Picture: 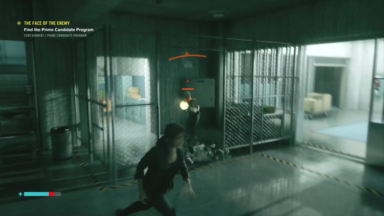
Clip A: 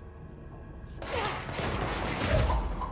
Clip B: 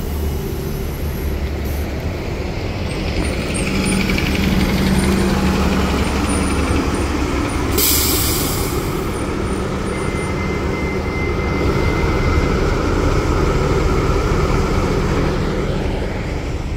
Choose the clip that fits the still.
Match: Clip A